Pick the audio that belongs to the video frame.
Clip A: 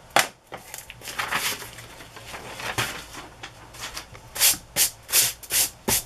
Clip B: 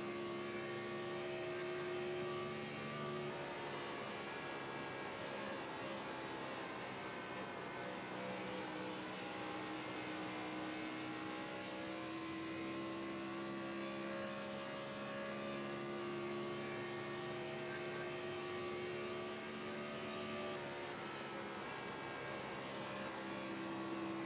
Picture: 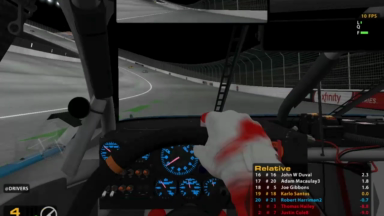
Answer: B